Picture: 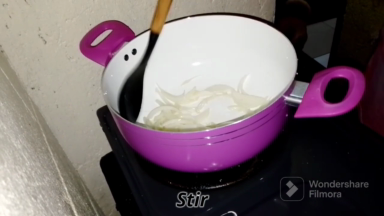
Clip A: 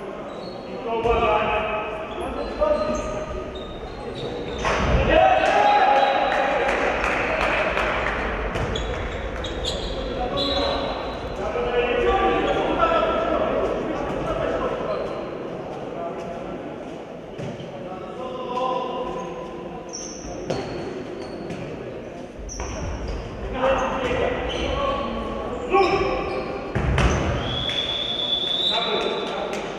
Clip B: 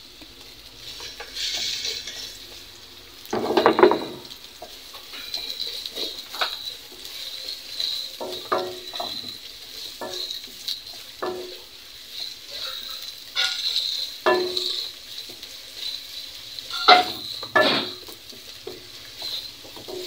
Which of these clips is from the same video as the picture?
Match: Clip B